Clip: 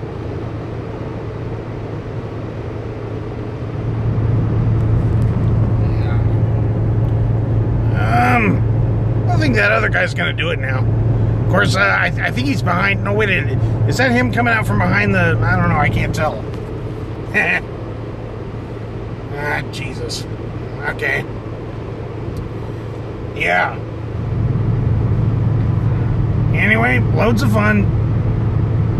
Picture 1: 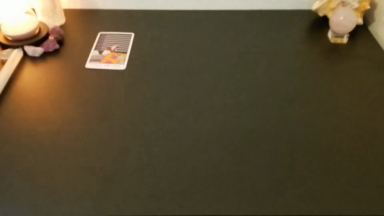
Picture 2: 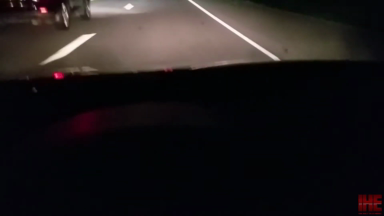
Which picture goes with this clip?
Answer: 2